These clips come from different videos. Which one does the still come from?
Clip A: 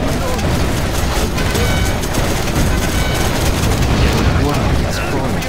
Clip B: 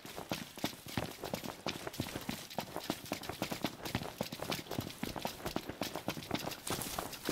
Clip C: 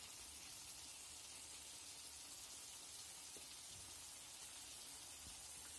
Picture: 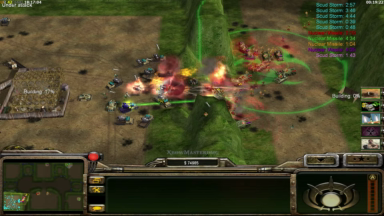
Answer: A